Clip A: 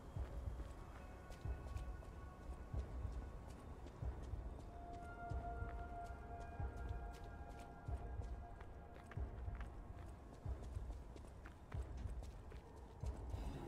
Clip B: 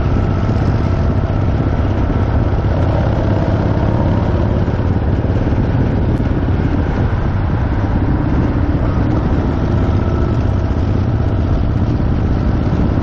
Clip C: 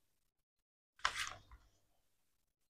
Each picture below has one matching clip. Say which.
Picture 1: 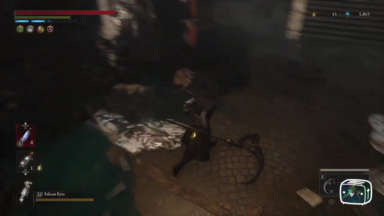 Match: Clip A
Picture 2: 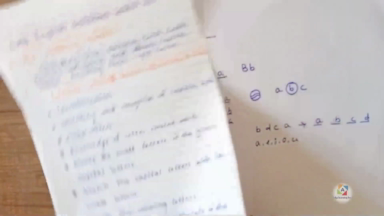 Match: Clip C